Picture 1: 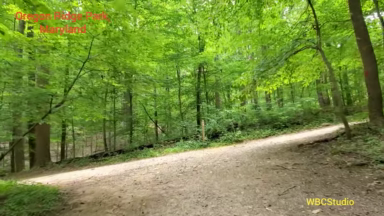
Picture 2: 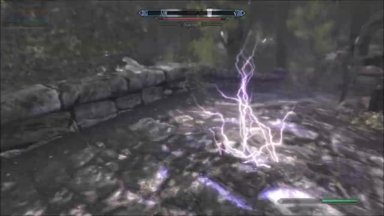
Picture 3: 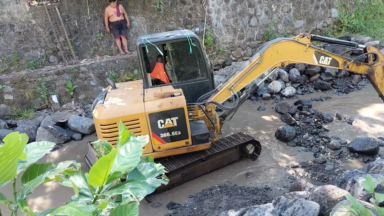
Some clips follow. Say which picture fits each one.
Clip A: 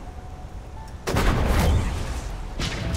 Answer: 2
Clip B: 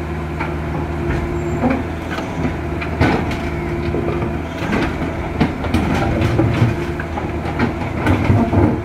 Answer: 3